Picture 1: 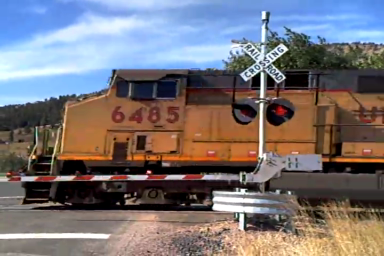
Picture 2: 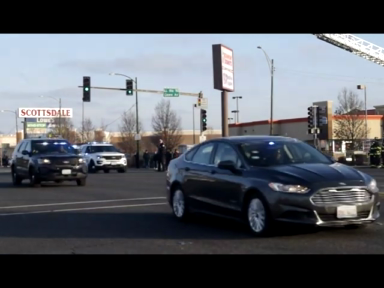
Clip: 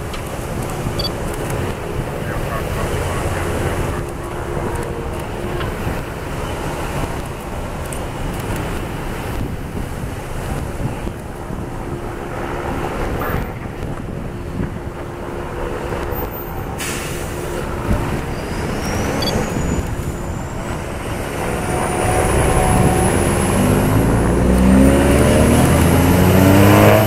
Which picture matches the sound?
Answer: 2